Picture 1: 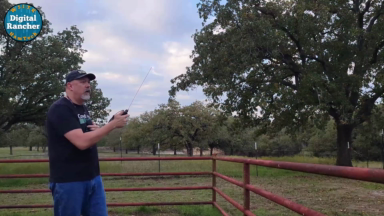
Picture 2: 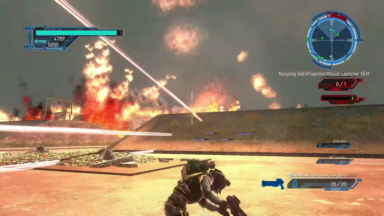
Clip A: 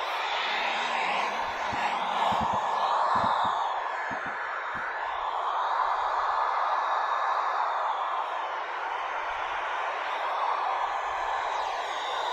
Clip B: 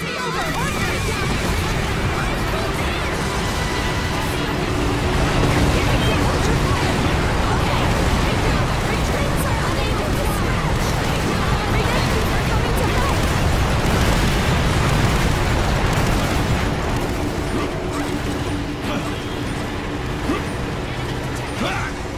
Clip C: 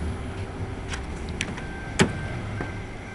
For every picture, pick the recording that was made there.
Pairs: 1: A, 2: B